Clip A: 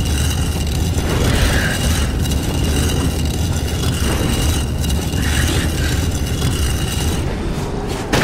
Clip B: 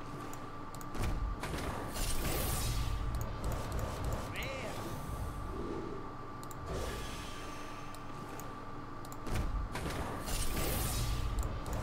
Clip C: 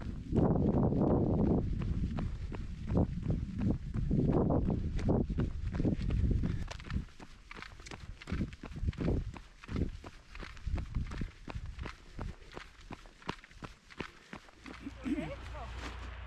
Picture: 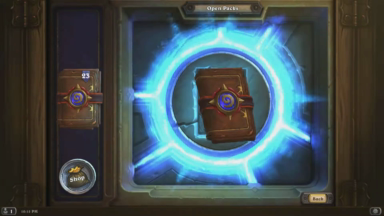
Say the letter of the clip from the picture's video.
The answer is B